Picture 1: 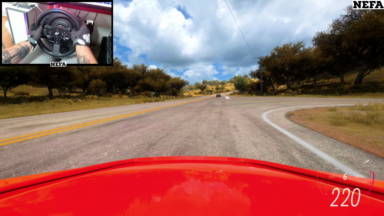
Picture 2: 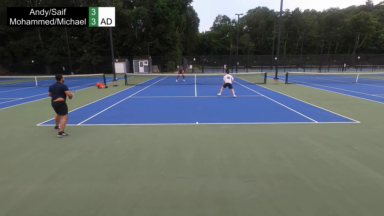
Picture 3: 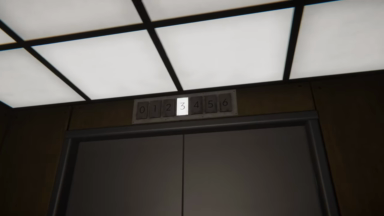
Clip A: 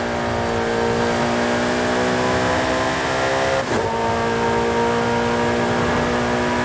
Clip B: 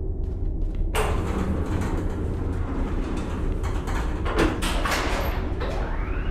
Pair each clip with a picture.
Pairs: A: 1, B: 3